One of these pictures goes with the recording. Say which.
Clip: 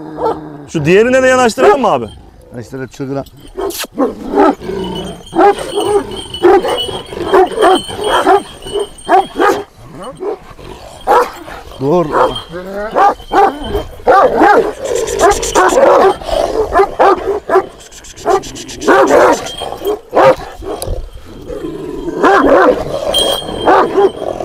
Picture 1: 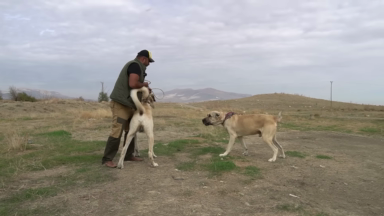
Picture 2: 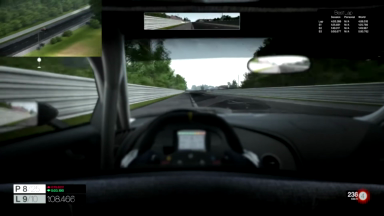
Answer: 1